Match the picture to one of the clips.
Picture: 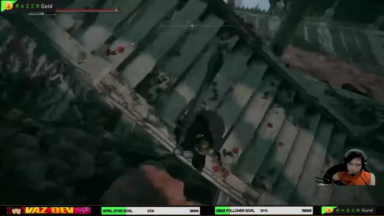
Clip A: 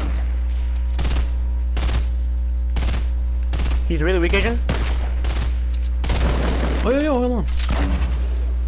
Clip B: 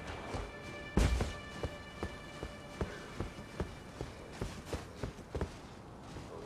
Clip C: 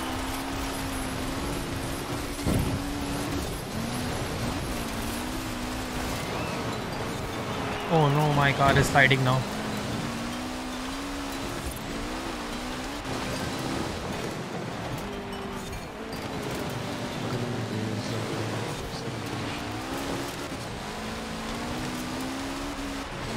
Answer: B